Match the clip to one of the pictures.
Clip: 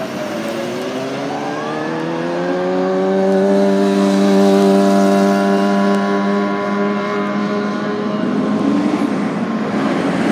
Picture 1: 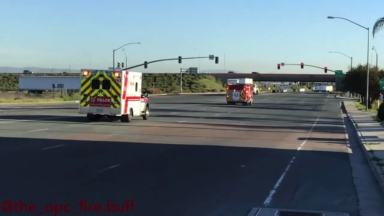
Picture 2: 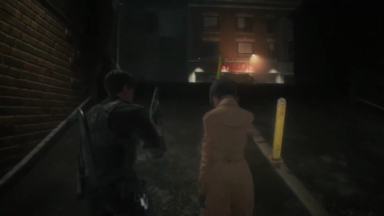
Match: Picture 1